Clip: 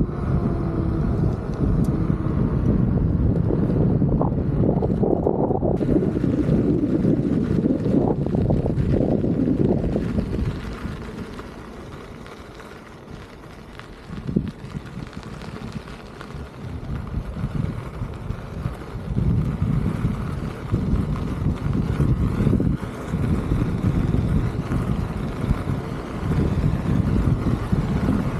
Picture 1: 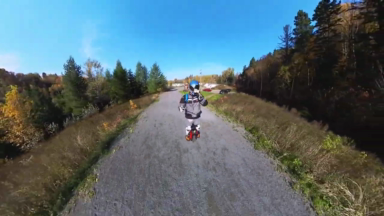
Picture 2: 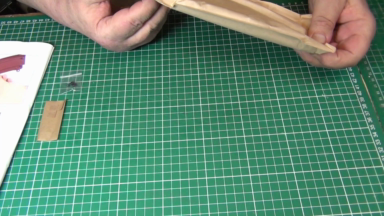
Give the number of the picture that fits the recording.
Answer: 1